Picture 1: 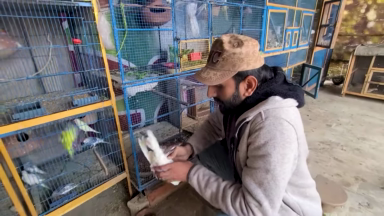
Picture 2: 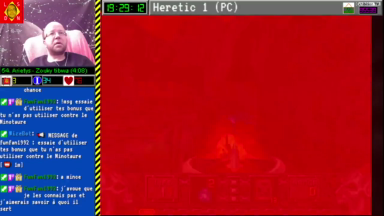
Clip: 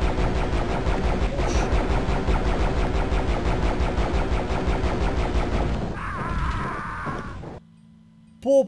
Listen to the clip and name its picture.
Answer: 2